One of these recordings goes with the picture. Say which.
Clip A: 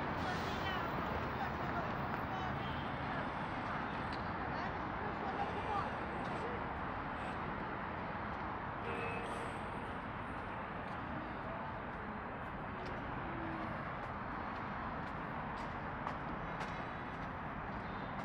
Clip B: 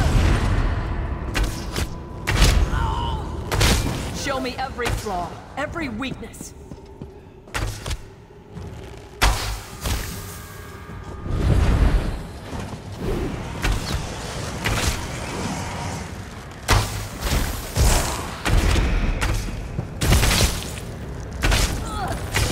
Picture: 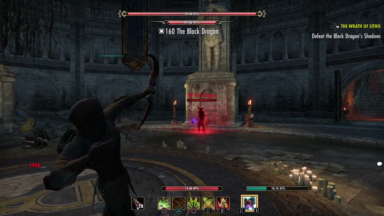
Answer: B